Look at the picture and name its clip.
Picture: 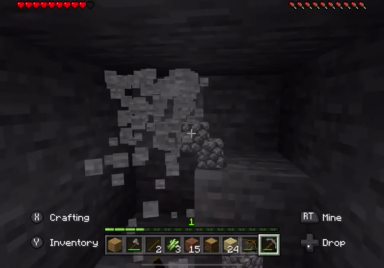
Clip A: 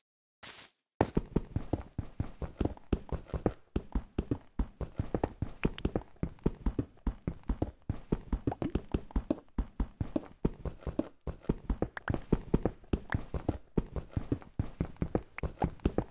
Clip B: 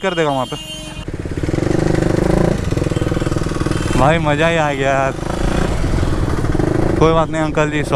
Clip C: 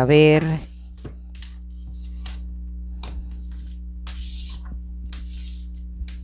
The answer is A